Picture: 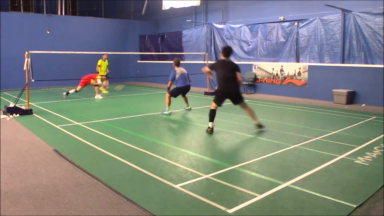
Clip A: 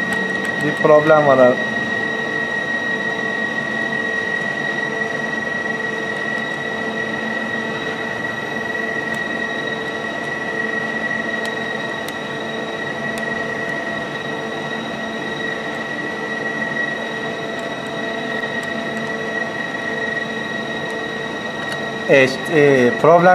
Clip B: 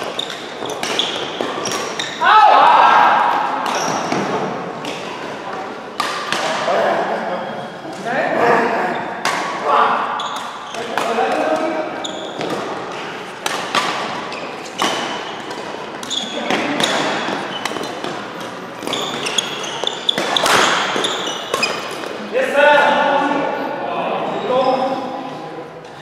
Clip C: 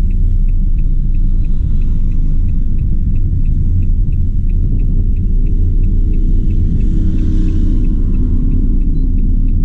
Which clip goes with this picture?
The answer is B